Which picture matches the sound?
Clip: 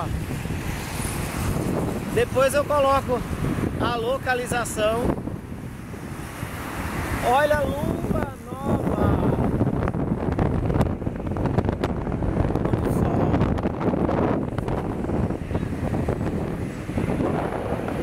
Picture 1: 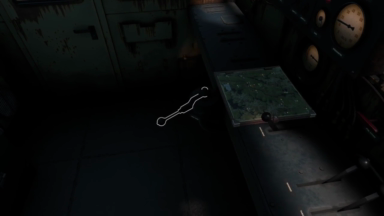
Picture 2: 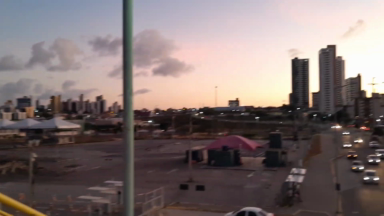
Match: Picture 2